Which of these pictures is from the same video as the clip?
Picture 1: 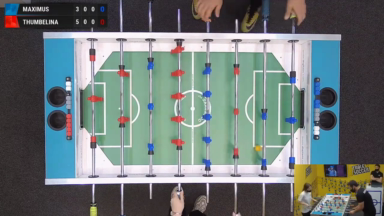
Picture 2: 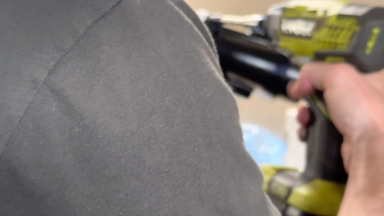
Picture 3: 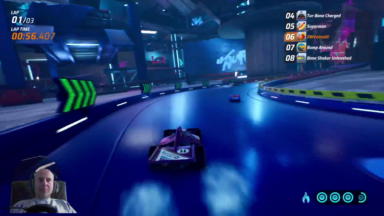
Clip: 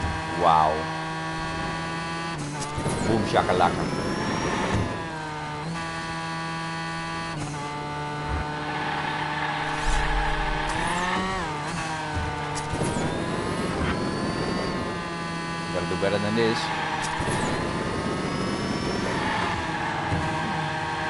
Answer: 3